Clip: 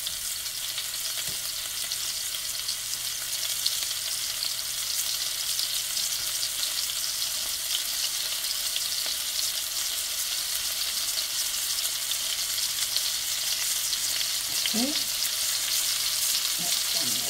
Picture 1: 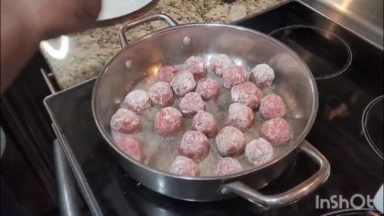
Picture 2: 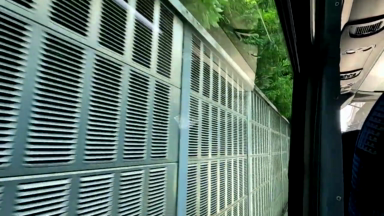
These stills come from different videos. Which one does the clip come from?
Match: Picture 1